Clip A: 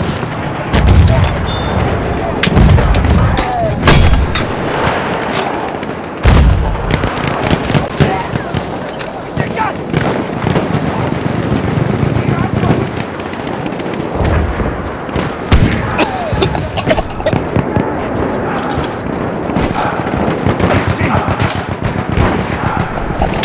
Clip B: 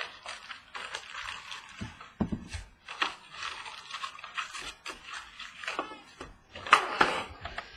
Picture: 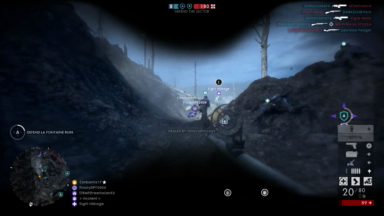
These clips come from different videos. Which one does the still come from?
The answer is A